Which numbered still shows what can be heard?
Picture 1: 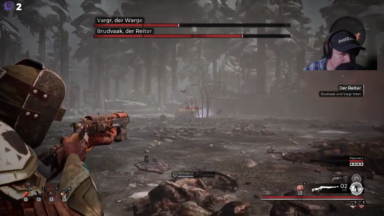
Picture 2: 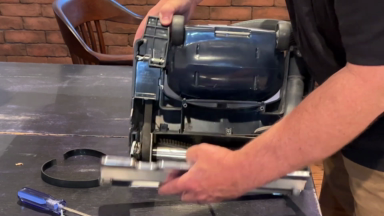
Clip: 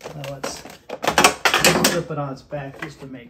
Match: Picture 2